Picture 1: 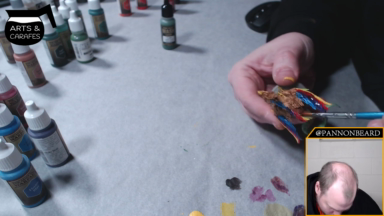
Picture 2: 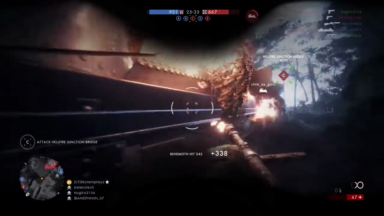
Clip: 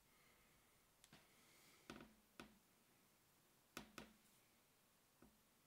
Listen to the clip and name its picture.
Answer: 1